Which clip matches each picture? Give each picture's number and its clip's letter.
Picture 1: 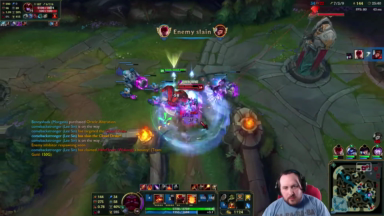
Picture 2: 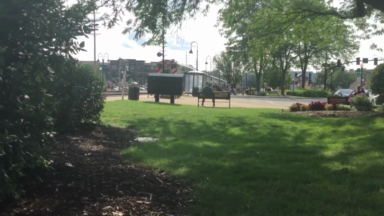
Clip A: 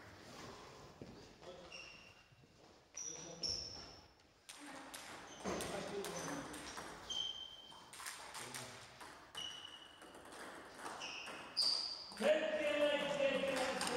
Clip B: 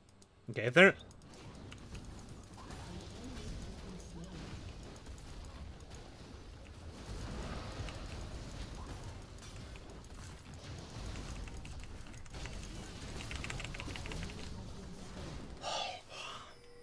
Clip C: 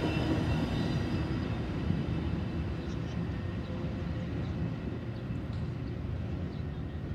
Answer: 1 B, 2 C